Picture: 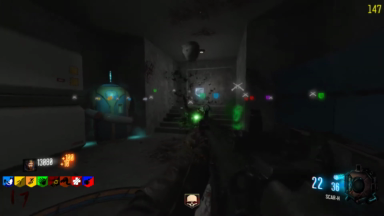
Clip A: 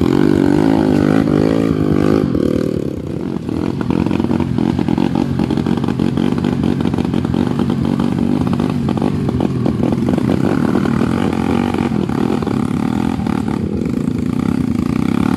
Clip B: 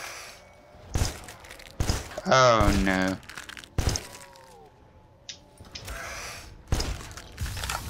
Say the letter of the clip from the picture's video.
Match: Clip B